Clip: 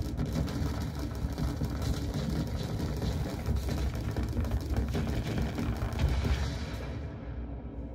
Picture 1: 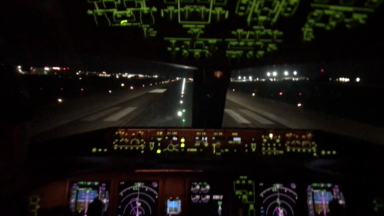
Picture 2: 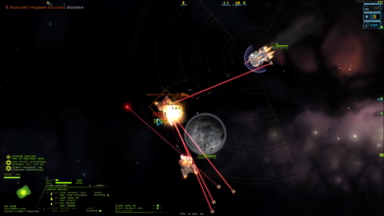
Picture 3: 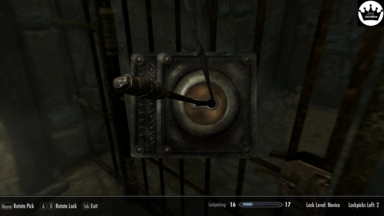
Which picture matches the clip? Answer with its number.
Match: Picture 2